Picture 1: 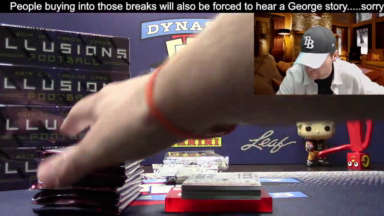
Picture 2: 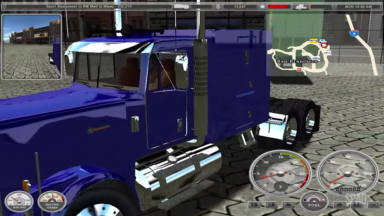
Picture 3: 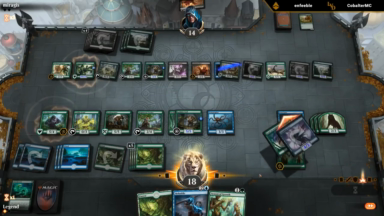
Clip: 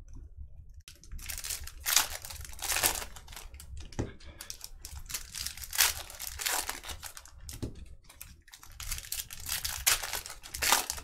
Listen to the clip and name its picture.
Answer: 1